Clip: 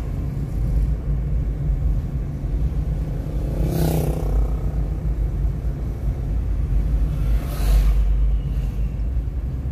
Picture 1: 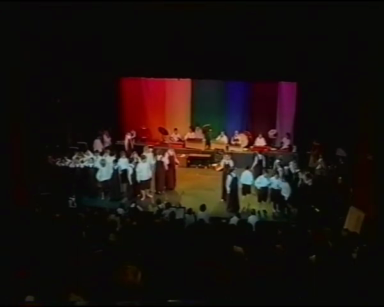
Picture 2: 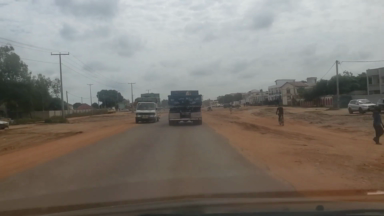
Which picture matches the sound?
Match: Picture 2